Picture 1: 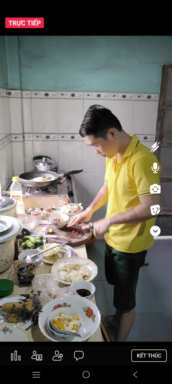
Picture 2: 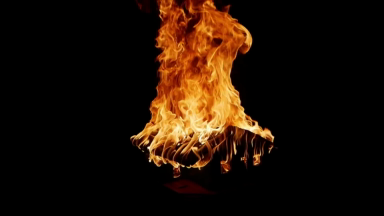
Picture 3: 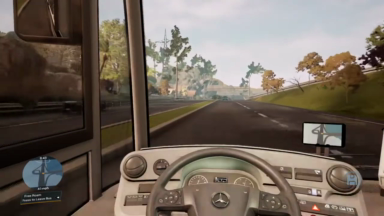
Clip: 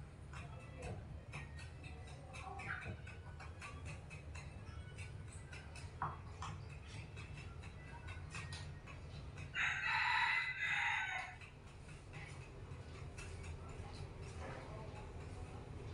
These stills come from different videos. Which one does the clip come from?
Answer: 1